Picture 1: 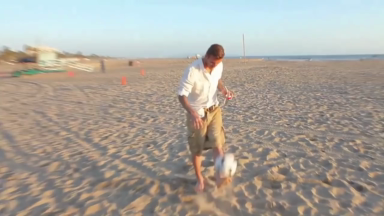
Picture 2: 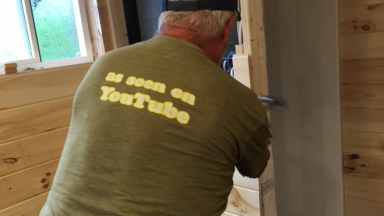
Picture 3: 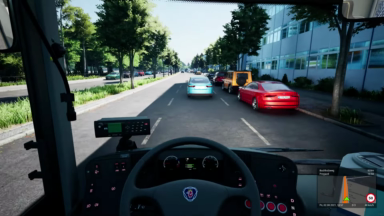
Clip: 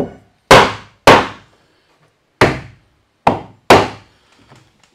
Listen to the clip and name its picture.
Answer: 2